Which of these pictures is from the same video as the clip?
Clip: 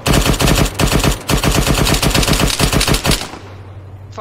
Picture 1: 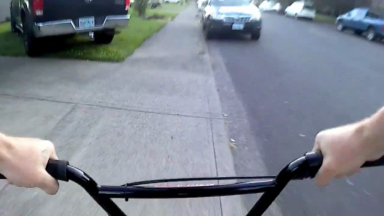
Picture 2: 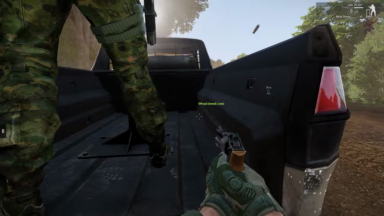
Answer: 2